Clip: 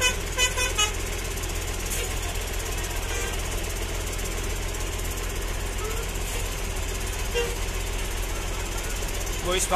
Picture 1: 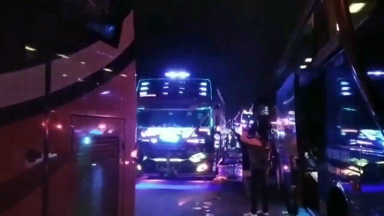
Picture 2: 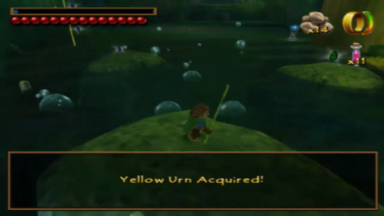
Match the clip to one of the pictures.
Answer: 1